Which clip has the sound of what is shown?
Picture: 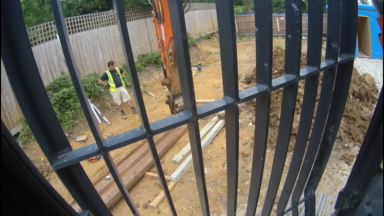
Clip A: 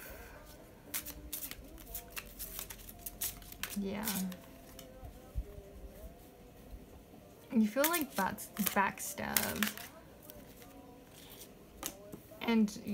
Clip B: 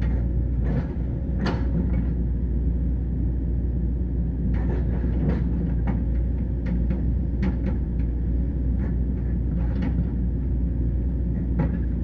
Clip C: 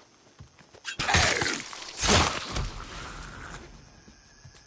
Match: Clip B